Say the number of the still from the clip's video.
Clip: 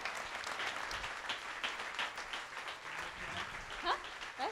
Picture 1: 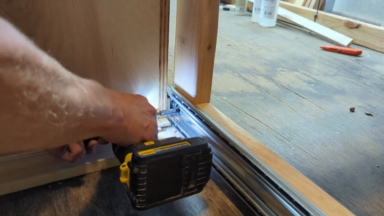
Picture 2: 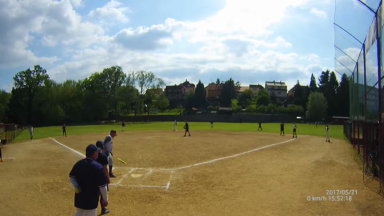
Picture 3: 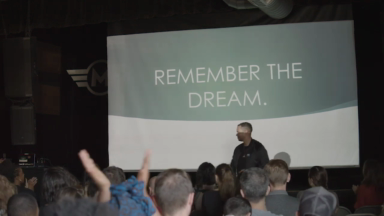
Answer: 3